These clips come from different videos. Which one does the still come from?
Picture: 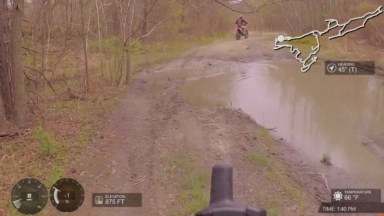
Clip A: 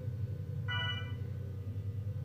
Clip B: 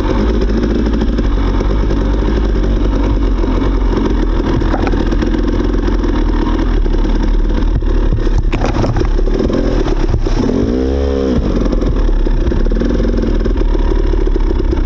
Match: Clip B